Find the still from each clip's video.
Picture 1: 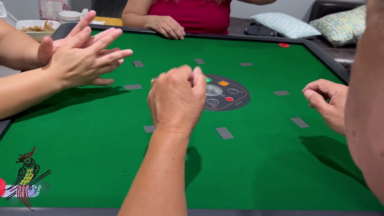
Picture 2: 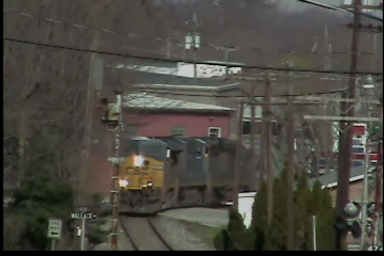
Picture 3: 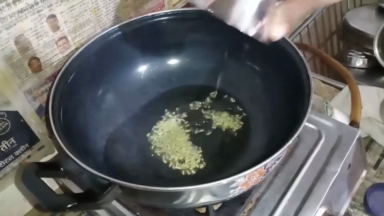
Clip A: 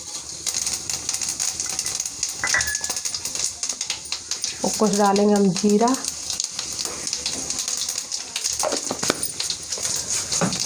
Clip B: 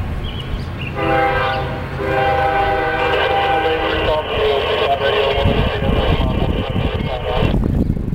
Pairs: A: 3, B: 2